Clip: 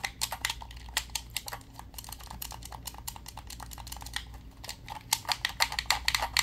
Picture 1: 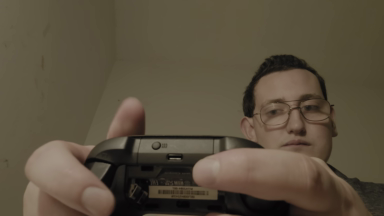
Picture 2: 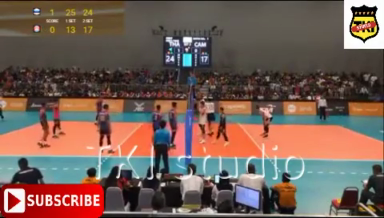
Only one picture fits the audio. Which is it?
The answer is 1